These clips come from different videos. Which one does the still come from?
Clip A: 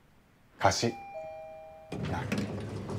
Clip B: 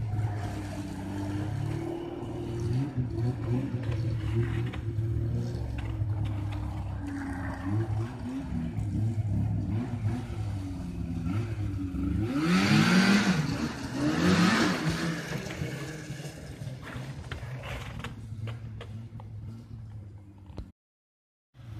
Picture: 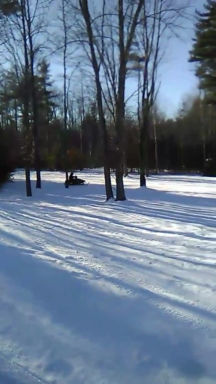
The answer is B